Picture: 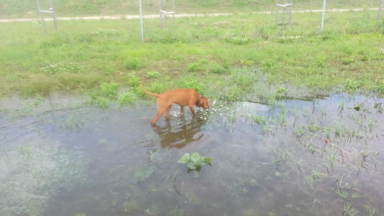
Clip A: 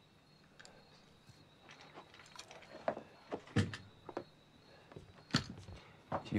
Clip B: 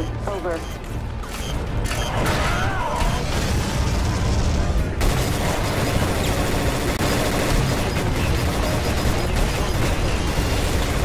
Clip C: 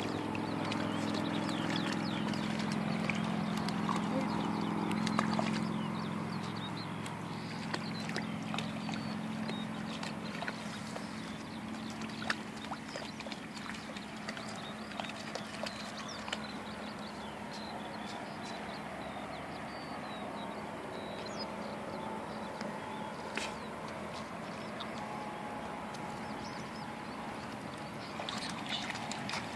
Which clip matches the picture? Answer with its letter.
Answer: C